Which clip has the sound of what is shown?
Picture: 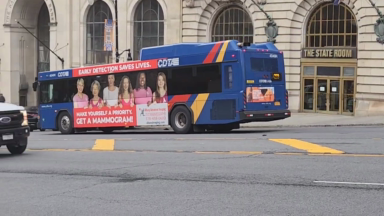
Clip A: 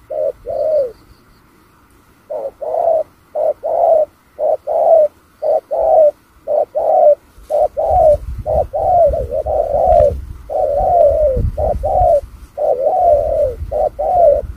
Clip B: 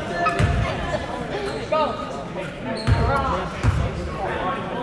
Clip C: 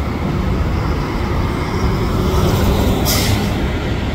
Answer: C